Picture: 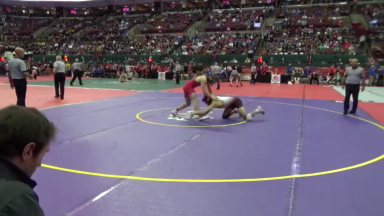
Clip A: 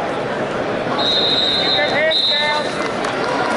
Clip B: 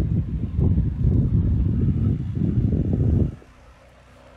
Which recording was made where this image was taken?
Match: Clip A